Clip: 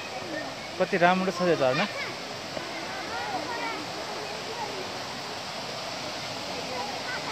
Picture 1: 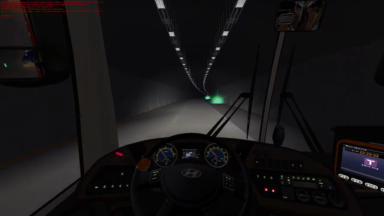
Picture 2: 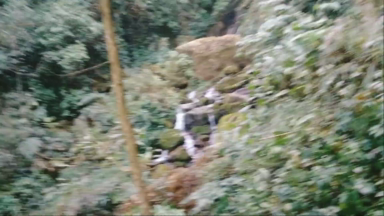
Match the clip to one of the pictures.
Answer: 2